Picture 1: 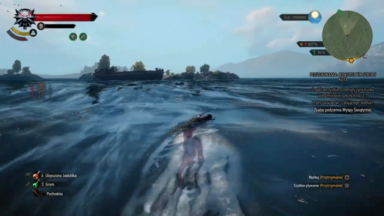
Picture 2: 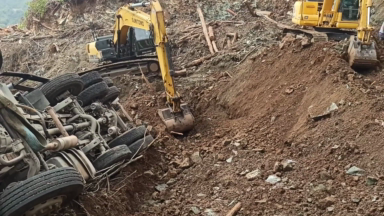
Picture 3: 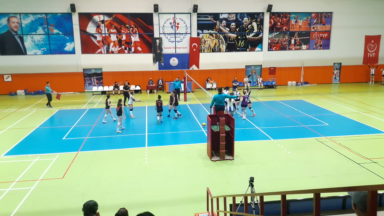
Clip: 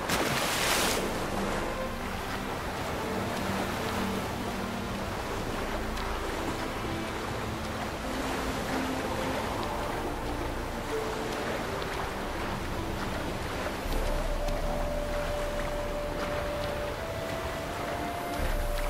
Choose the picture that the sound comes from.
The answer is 1